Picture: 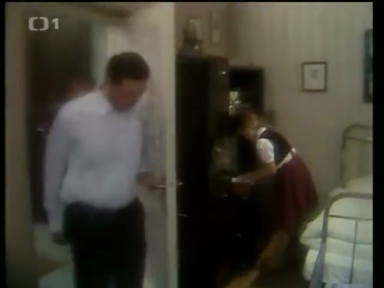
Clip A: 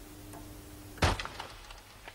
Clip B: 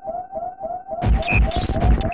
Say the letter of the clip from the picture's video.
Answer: A